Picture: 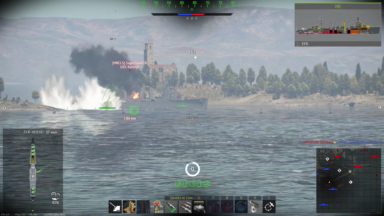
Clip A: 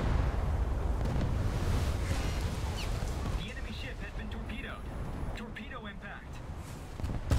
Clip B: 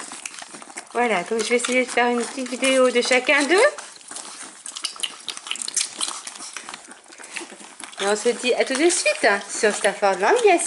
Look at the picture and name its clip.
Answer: A